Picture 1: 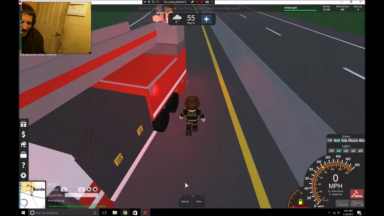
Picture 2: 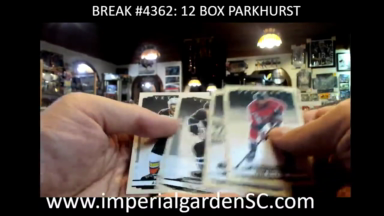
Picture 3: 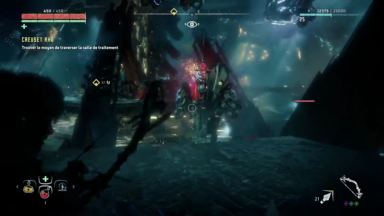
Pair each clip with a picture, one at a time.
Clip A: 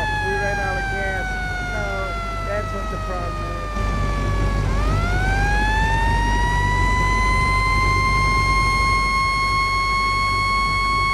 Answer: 1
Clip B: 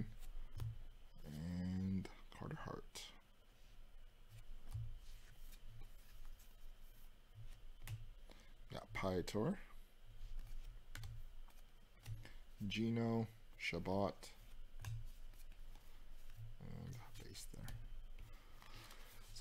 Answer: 2